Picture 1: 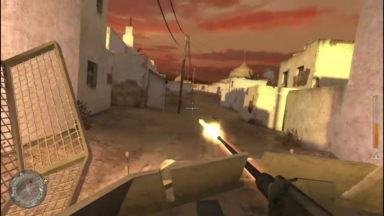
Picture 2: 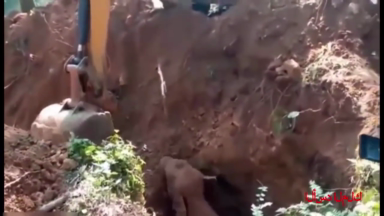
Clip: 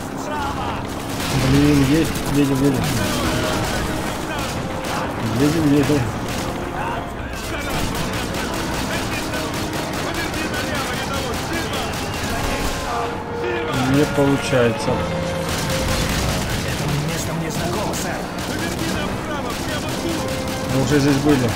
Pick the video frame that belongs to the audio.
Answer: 1